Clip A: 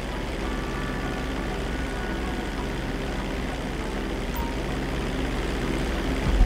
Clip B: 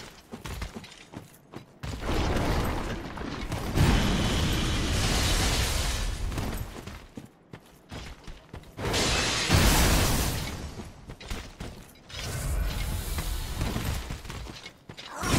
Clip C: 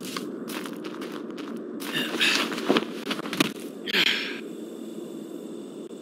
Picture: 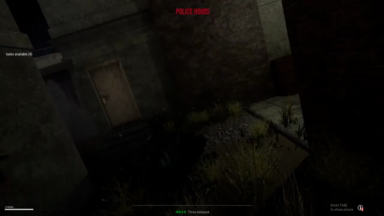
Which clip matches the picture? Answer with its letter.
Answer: C